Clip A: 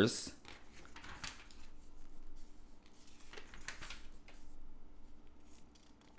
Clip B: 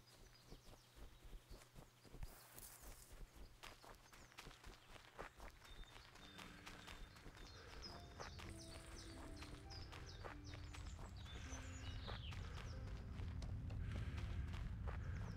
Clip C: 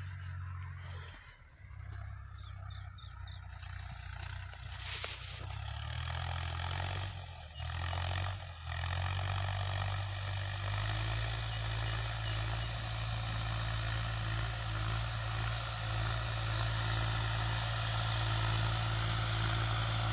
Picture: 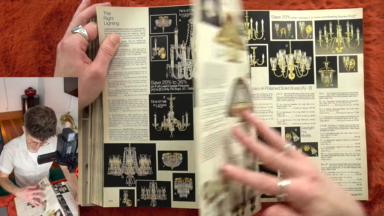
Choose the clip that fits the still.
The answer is A